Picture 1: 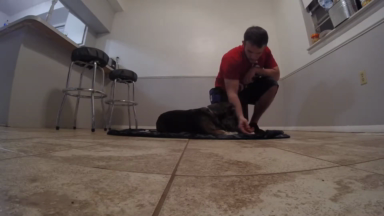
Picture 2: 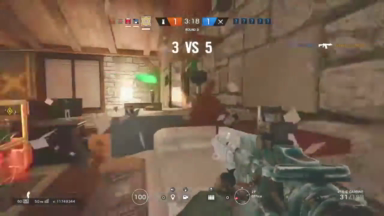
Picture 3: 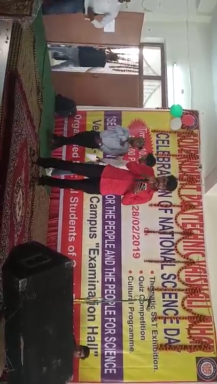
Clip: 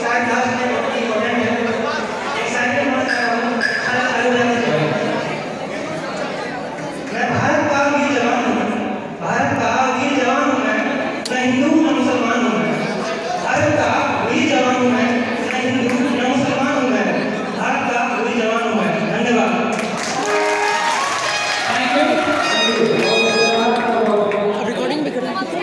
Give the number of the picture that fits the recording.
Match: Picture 3